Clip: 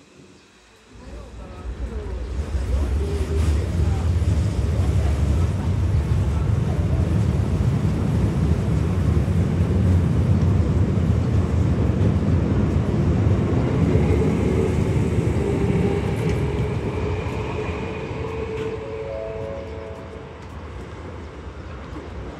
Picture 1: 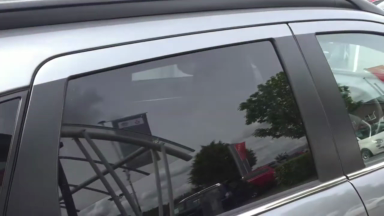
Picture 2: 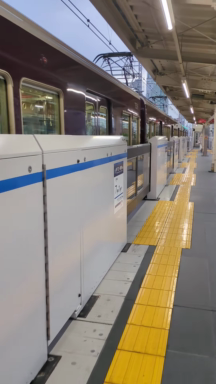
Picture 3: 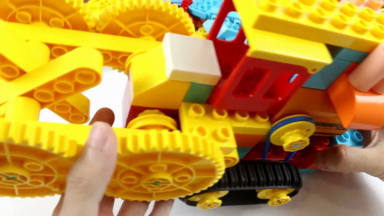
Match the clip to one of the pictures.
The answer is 2